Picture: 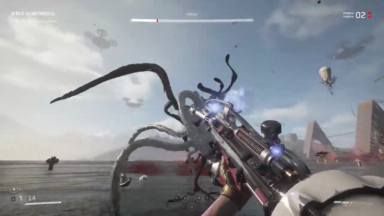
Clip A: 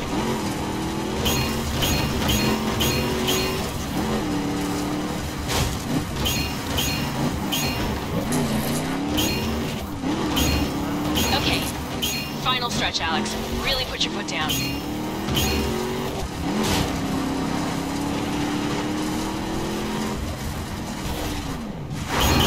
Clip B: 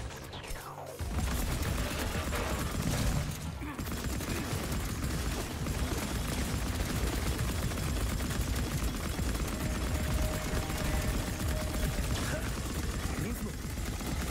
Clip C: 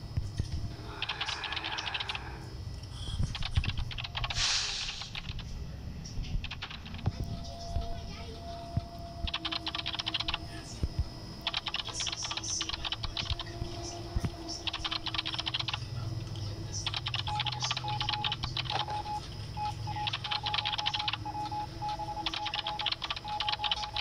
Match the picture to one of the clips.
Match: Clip B